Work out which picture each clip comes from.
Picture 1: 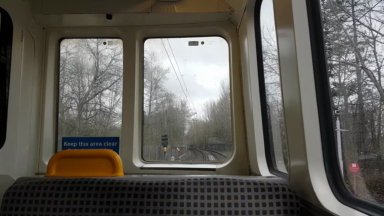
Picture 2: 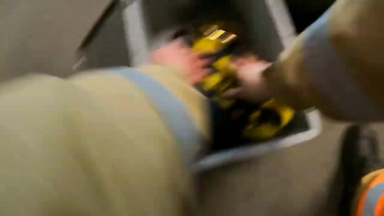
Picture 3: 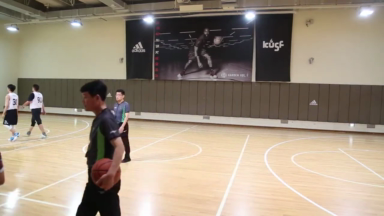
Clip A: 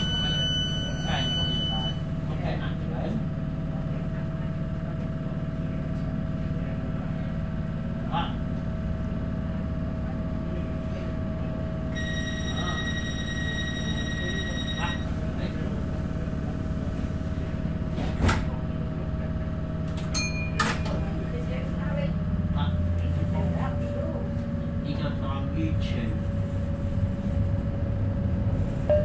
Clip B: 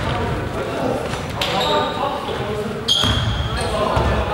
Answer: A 1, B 3